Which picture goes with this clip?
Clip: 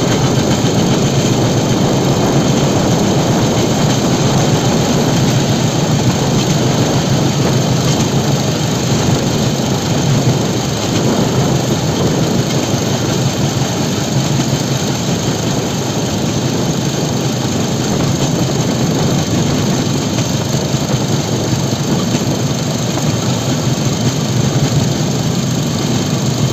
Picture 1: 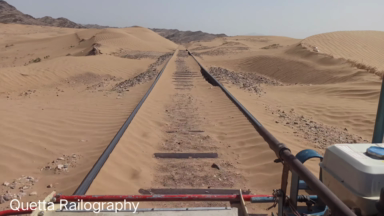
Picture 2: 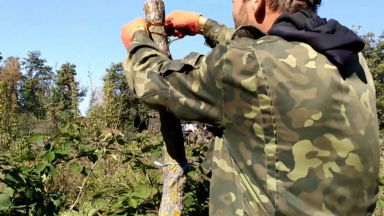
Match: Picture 1